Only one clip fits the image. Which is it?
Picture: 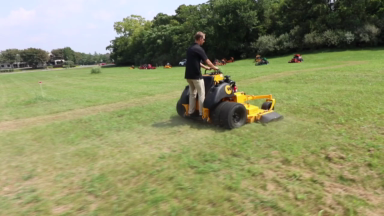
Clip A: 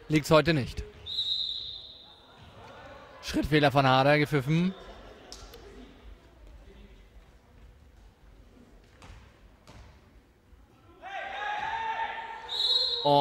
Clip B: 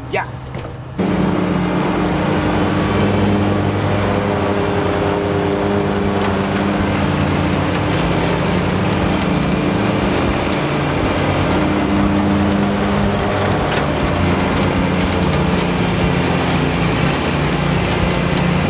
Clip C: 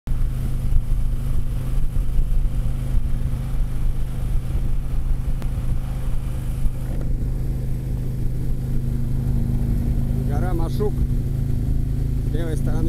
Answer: B